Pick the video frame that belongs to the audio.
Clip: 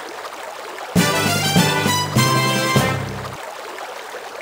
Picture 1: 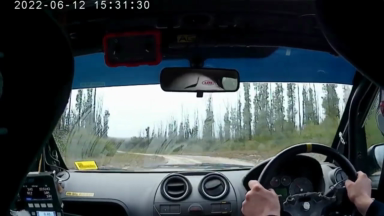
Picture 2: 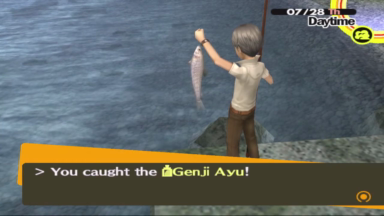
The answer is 2